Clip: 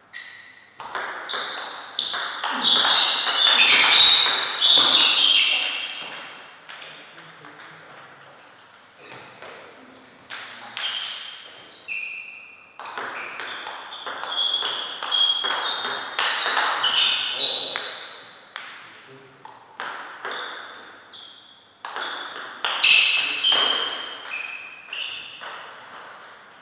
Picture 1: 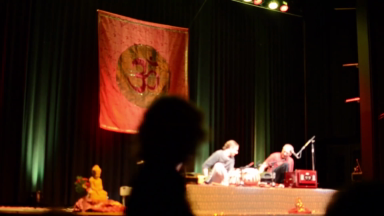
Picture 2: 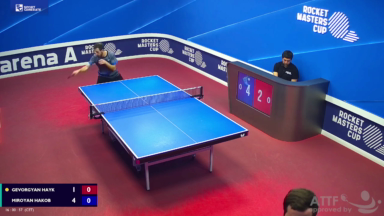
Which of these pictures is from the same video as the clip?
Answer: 2